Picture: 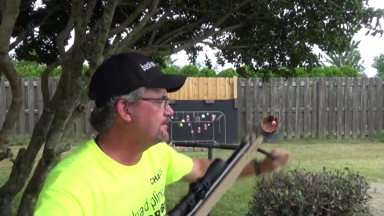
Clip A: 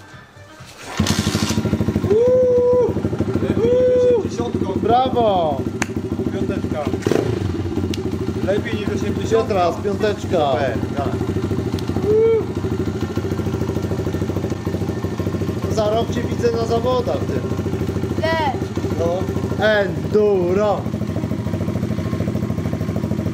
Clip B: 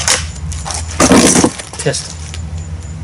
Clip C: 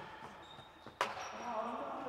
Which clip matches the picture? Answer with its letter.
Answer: B